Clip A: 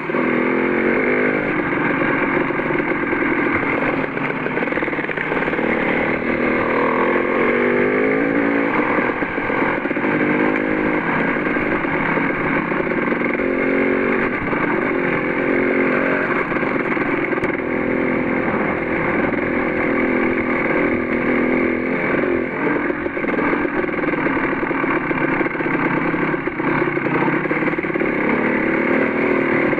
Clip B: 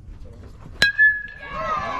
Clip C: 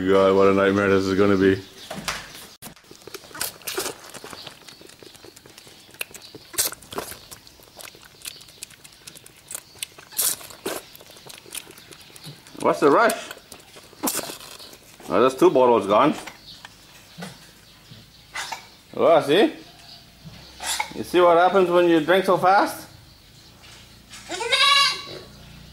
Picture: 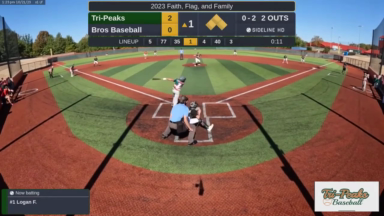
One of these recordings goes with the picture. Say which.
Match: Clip B